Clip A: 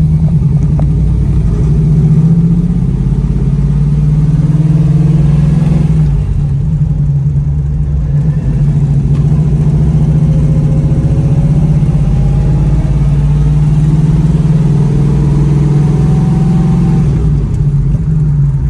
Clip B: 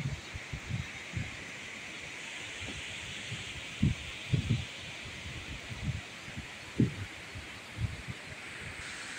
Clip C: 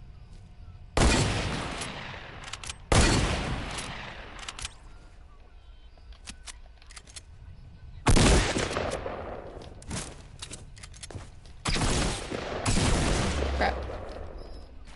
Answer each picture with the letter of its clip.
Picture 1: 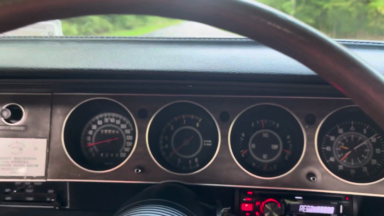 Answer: A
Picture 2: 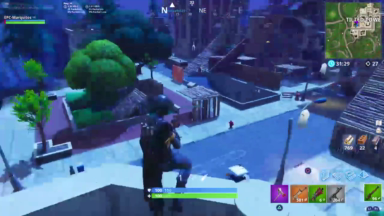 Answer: C